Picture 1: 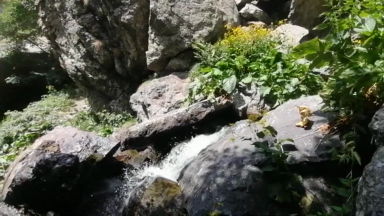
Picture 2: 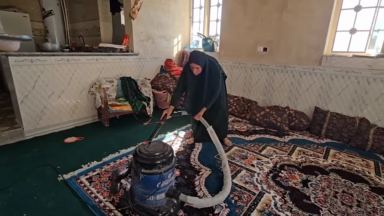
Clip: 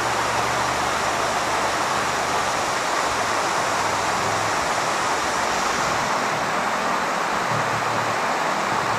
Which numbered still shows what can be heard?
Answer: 1